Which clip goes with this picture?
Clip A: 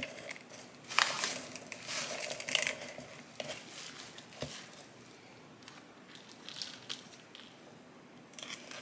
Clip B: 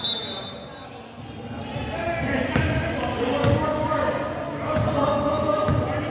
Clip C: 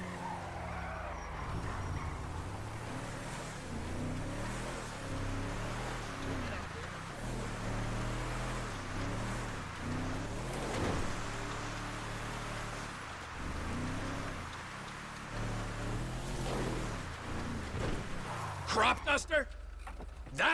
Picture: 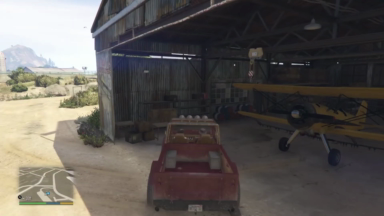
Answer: C